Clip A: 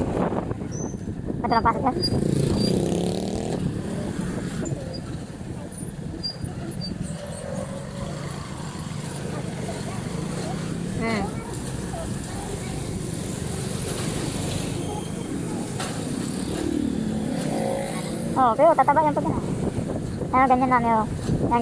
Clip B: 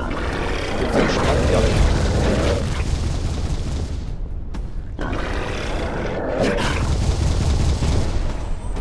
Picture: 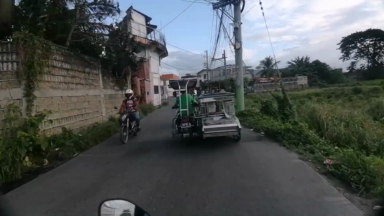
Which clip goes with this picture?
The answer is A